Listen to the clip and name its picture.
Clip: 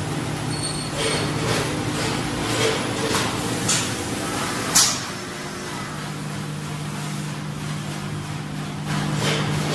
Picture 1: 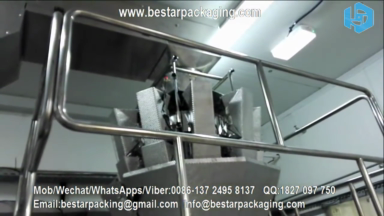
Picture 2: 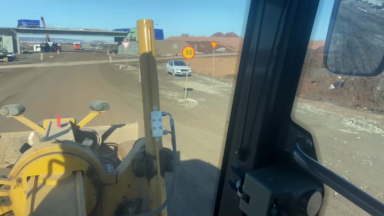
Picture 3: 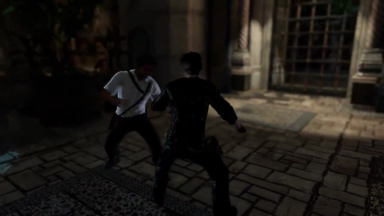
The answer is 1